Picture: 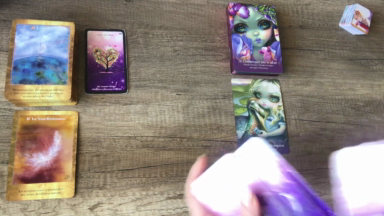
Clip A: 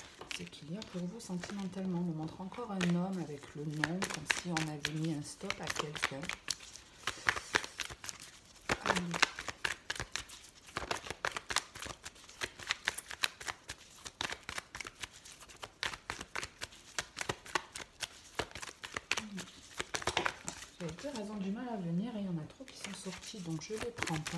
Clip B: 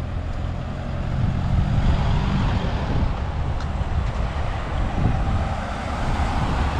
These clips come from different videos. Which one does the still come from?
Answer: A